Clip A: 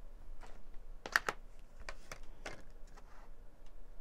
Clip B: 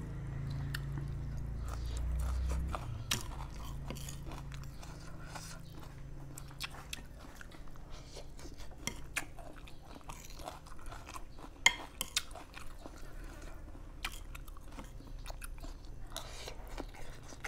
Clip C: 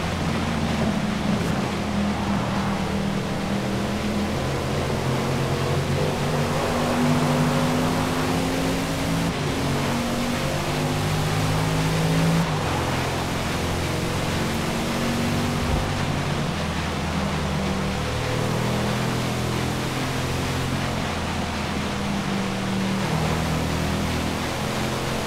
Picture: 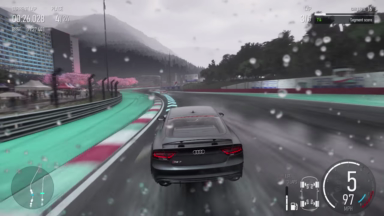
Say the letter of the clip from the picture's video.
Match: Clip C